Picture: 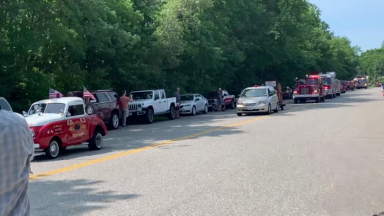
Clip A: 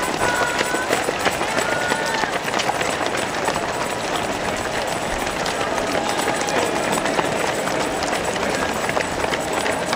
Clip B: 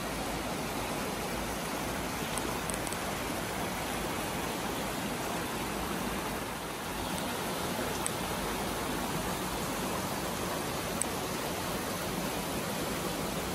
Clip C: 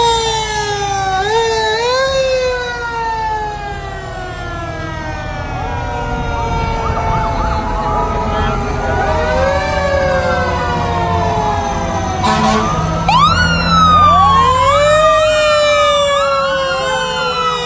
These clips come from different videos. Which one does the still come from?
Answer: C